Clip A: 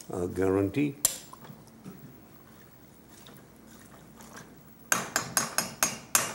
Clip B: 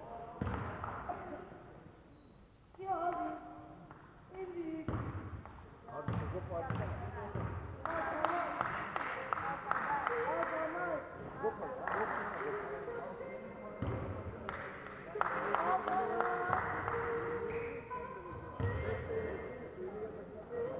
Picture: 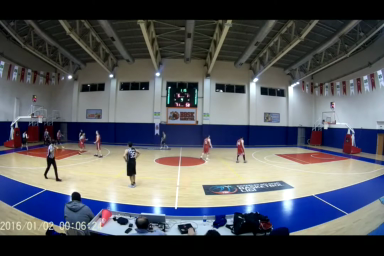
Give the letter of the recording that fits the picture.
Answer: B